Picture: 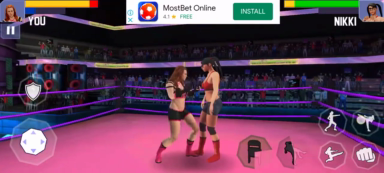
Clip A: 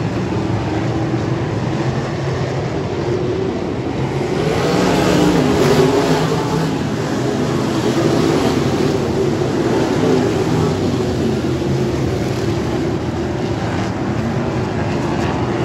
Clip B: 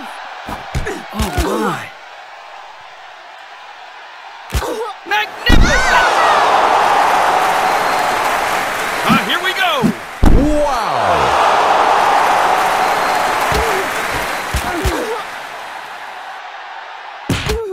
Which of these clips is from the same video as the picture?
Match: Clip B